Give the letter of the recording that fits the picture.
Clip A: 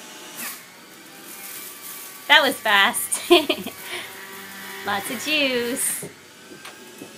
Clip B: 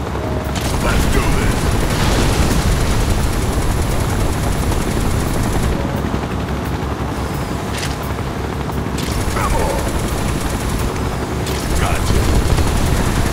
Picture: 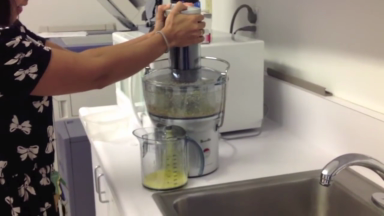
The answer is A